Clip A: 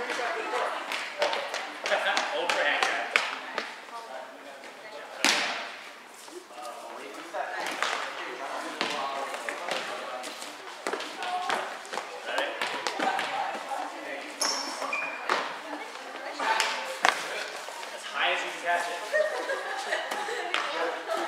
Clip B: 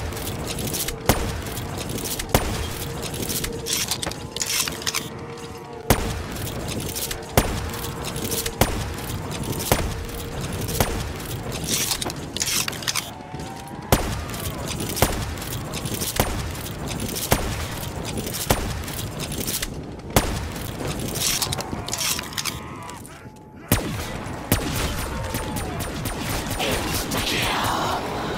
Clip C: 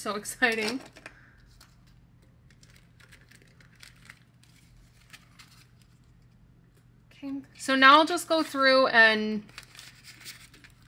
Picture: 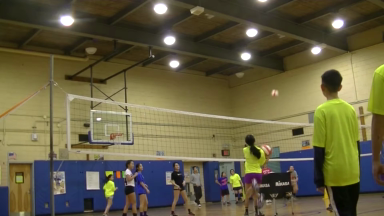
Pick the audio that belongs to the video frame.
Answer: A